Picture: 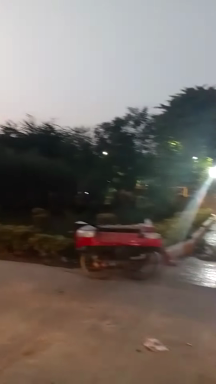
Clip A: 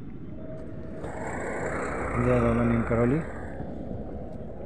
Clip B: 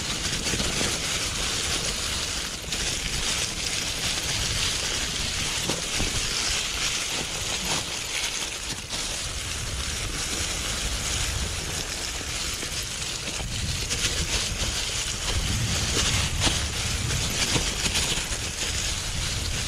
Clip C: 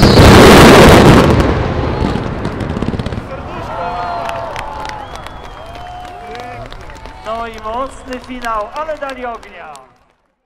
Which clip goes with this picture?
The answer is A